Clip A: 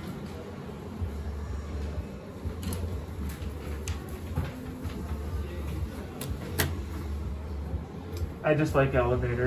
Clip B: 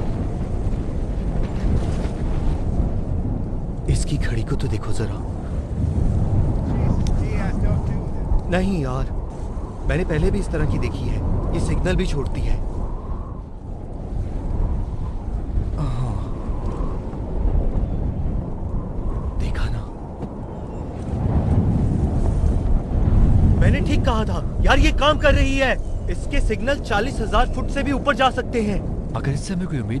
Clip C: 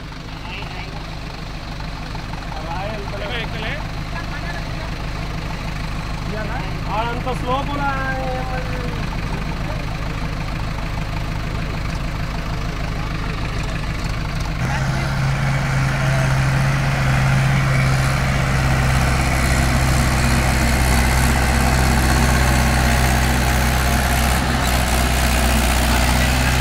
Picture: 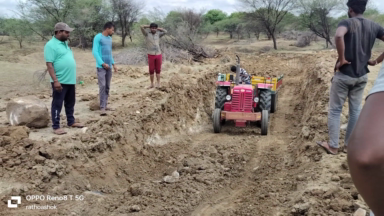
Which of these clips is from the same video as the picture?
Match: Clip C